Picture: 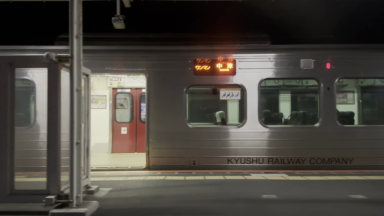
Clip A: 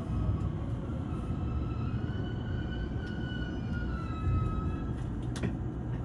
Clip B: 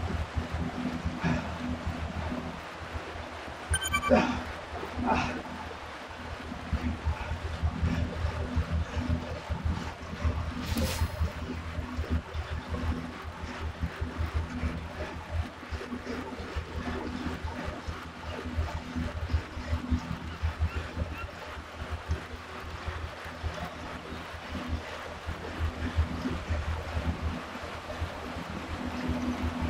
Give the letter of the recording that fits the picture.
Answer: A